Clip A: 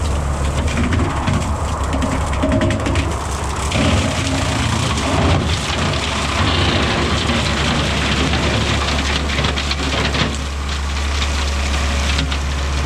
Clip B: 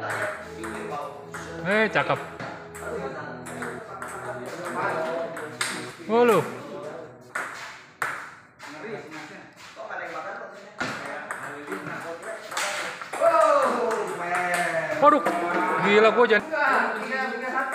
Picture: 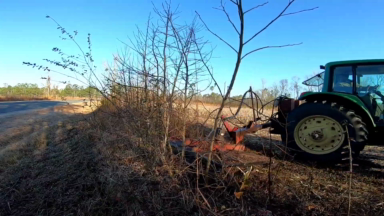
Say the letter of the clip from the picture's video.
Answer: A